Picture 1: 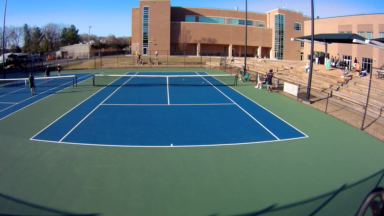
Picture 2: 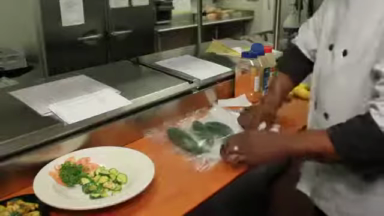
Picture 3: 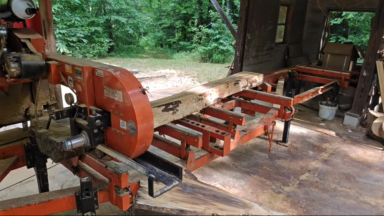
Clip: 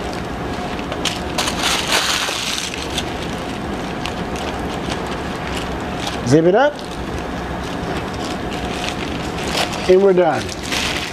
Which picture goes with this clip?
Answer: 2